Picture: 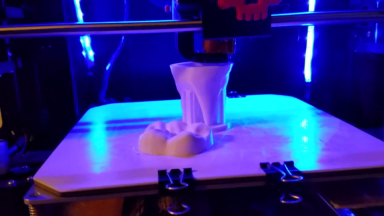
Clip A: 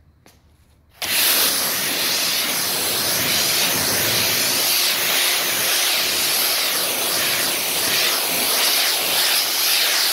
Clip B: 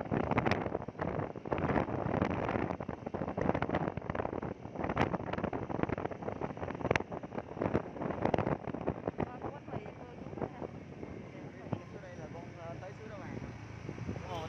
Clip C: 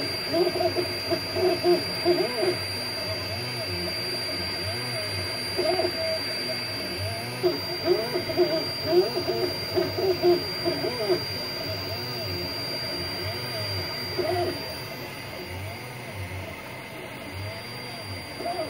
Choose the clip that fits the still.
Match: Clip C